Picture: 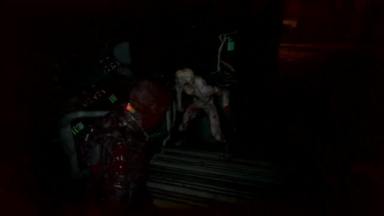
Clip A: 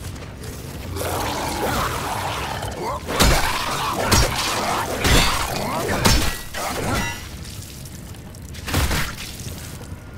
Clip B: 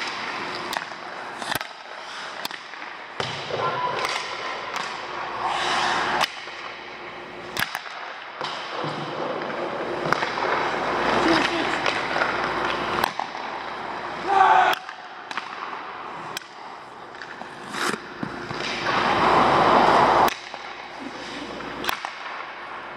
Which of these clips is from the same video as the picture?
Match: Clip A